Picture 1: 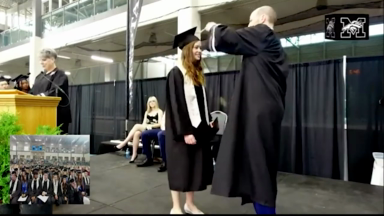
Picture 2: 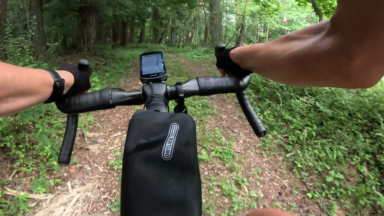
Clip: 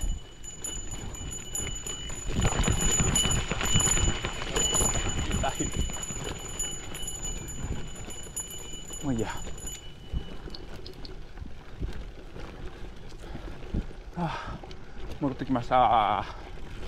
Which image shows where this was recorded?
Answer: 2